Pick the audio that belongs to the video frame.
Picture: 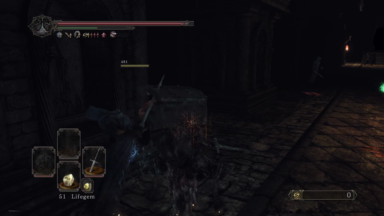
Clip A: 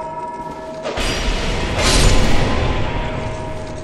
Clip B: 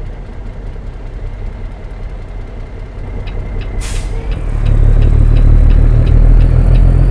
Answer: A